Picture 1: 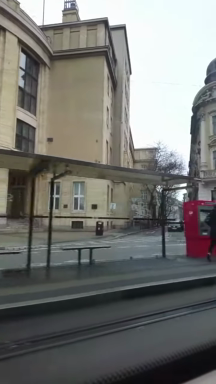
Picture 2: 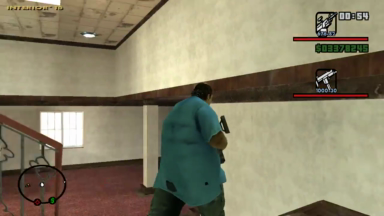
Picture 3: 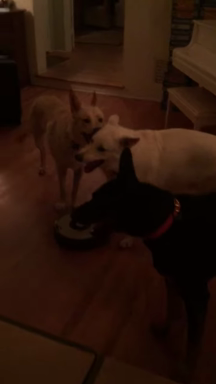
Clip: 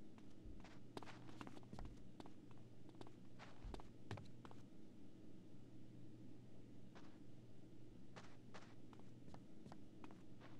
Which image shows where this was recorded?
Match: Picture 2